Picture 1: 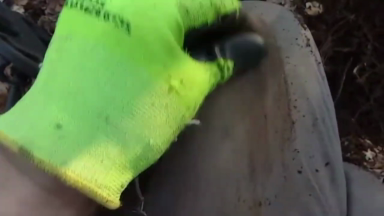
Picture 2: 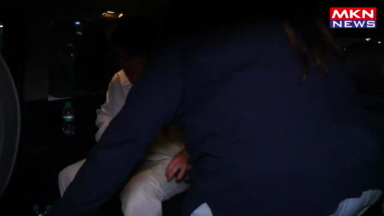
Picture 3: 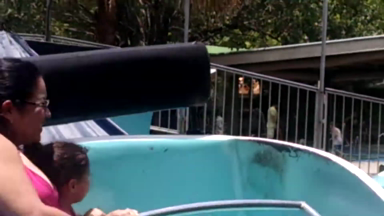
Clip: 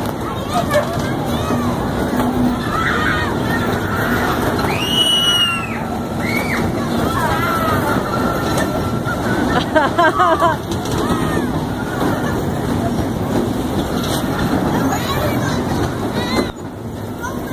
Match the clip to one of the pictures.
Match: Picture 3